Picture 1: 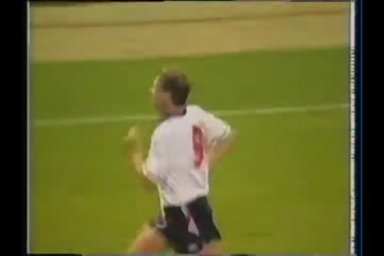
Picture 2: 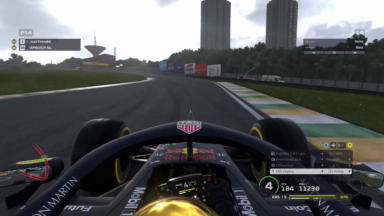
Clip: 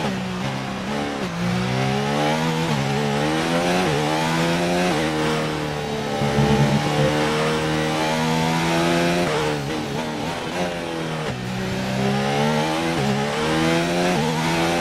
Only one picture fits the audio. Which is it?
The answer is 2